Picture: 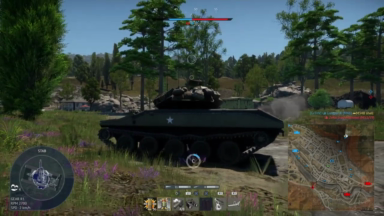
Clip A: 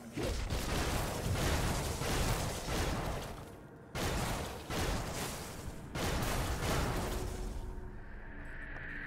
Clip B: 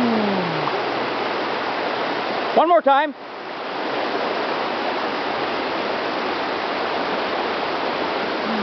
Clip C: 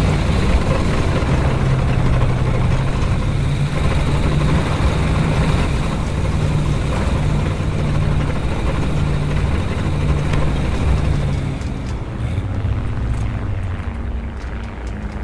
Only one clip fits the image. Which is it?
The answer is C